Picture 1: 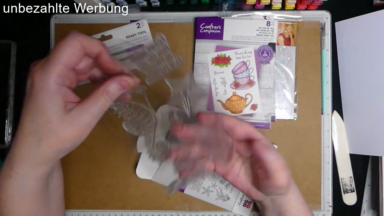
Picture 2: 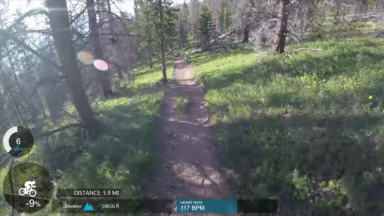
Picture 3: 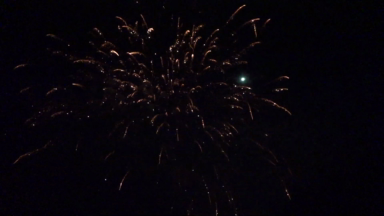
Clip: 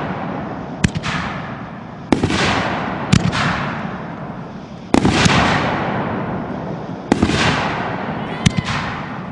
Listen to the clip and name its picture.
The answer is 3